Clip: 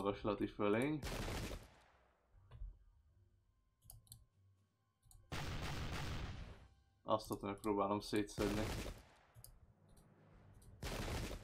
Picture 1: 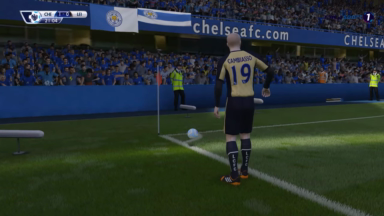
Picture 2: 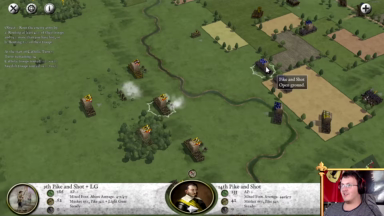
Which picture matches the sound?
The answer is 2